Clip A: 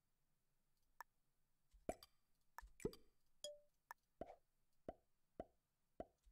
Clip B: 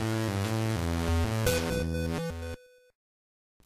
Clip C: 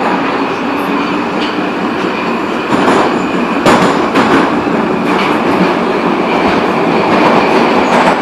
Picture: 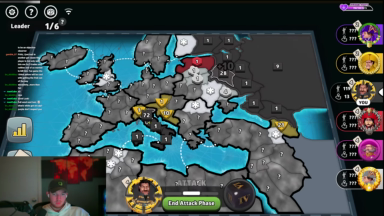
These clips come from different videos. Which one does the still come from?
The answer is A